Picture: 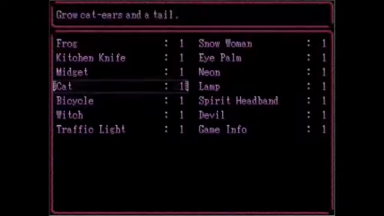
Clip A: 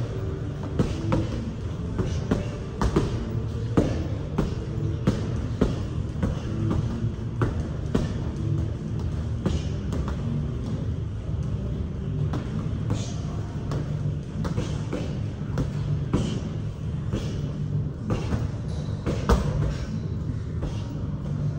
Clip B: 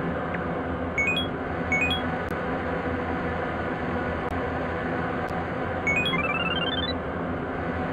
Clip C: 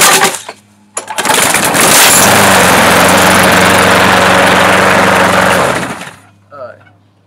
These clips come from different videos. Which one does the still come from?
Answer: B